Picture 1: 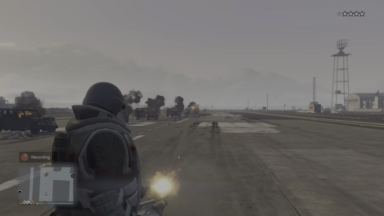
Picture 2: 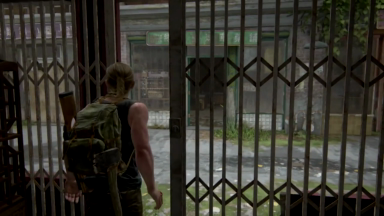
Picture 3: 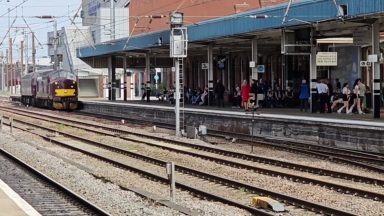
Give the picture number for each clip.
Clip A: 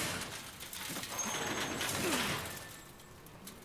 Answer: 2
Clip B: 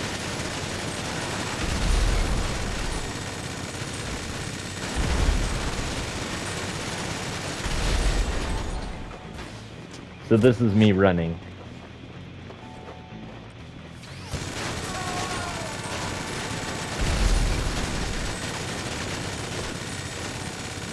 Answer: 1